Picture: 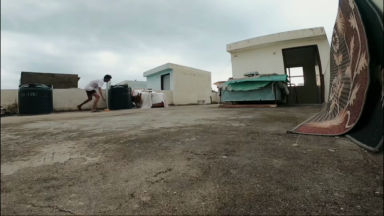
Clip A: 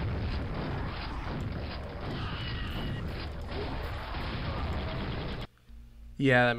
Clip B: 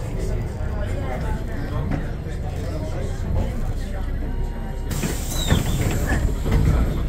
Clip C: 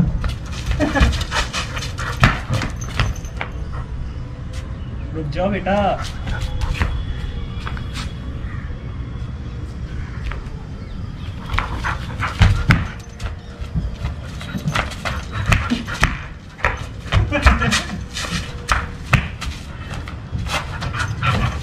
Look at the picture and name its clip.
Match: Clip C